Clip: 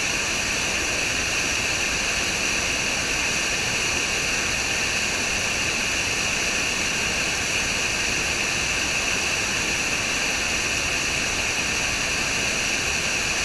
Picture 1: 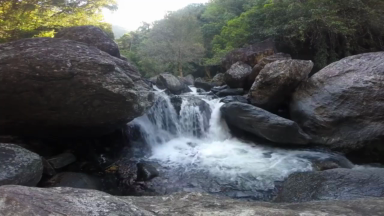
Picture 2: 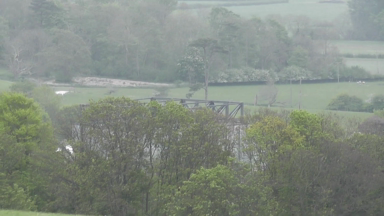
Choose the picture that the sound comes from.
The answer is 1